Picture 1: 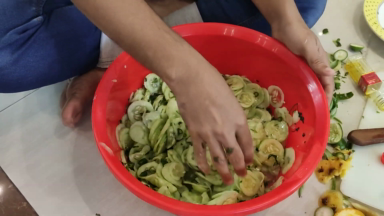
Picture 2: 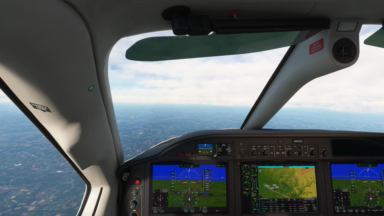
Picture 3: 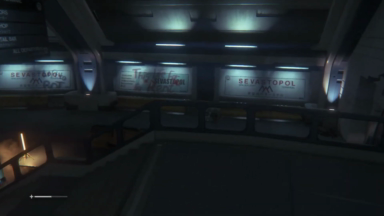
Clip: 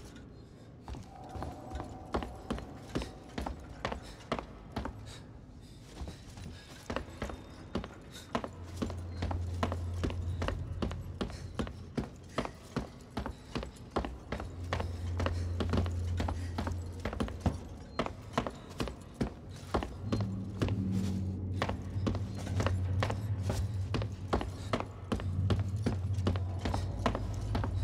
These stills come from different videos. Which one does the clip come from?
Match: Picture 3